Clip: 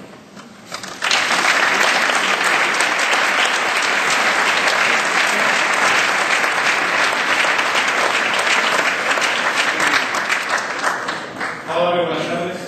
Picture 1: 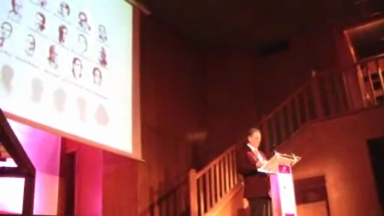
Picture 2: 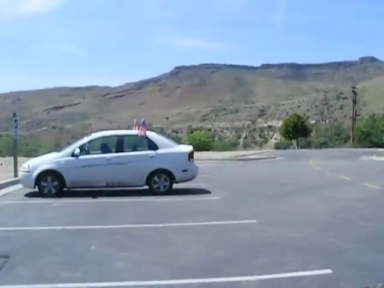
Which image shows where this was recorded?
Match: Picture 1